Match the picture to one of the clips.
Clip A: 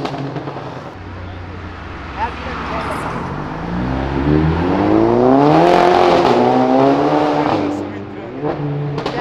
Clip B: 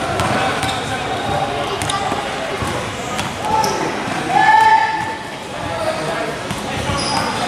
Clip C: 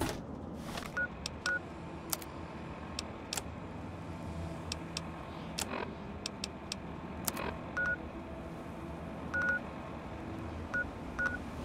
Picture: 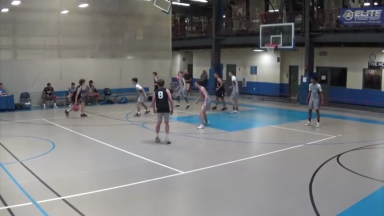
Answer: B